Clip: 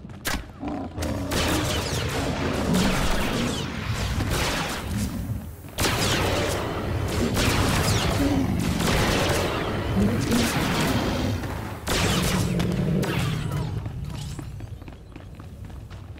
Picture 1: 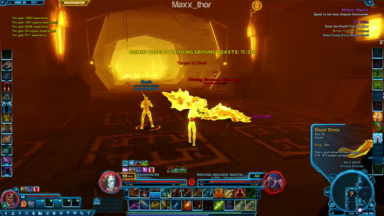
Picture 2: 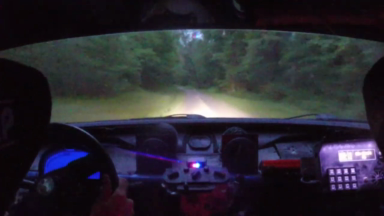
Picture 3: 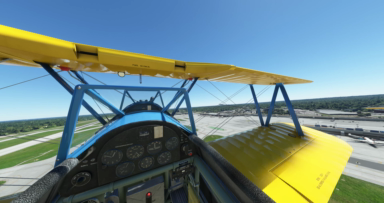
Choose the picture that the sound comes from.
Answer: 1